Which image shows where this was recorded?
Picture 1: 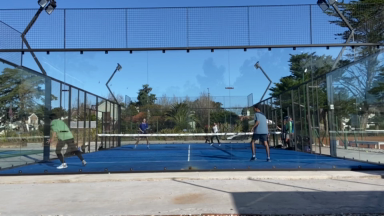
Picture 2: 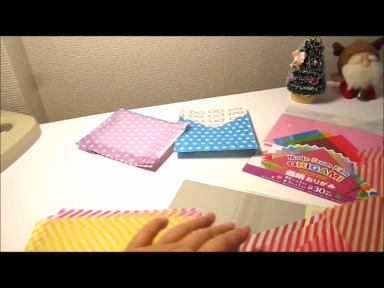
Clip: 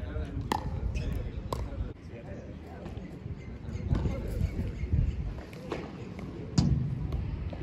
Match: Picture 1